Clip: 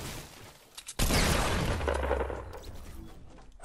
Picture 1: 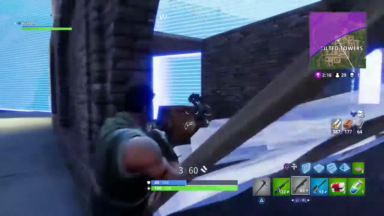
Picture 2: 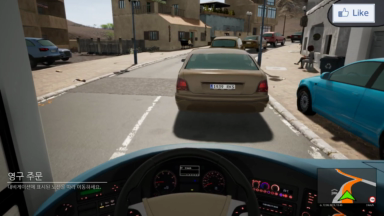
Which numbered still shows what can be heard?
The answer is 1